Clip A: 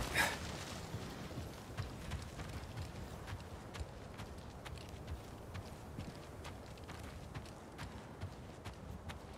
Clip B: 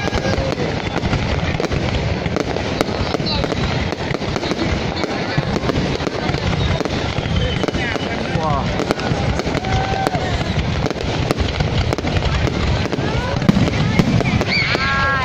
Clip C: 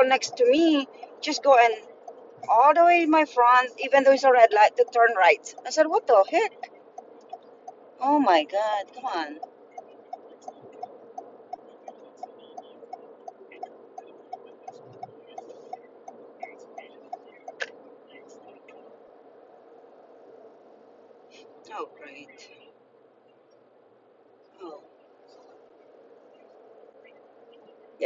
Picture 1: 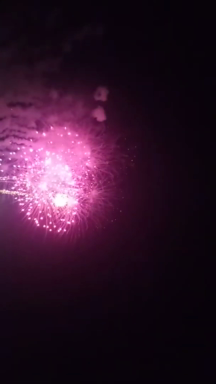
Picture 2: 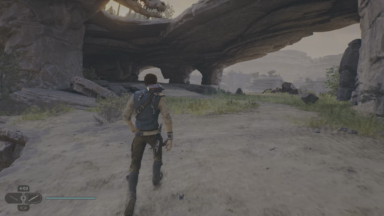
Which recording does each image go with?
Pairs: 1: B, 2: A